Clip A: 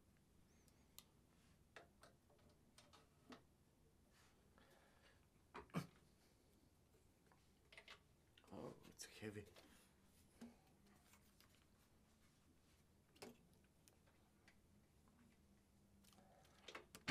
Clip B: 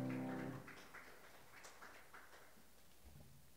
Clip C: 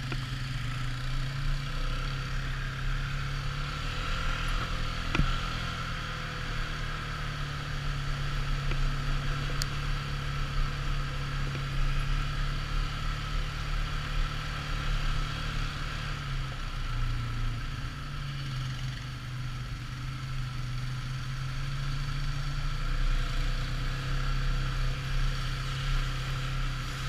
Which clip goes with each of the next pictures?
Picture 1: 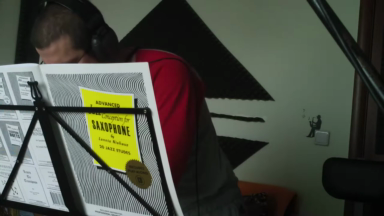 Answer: A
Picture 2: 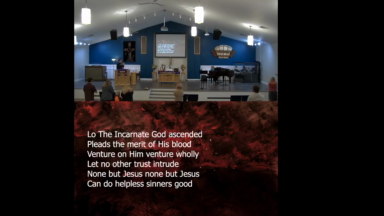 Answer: B